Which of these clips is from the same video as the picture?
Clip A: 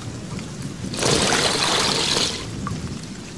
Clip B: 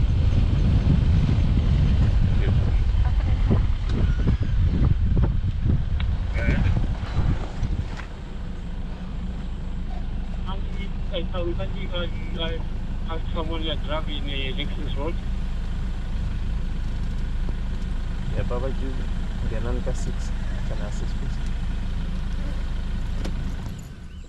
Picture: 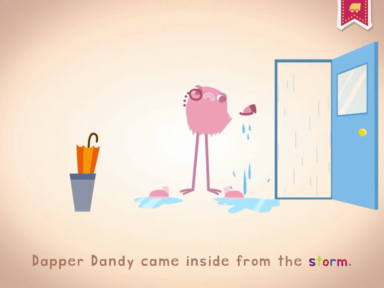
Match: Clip A